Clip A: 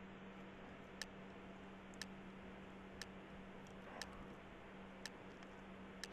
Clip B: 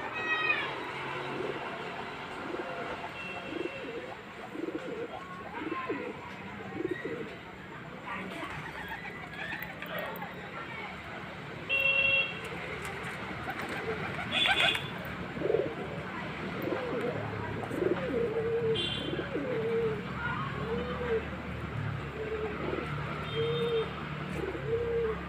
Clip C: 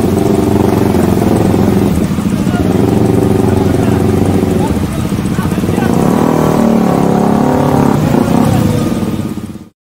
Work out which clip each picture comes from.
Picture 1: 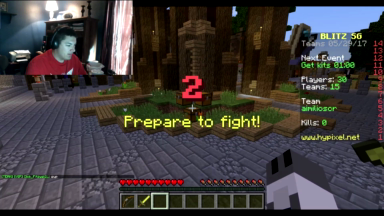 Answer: A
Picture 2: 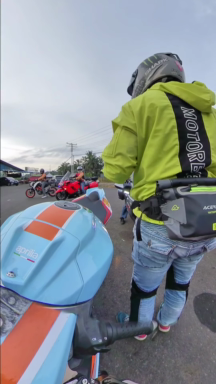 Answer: C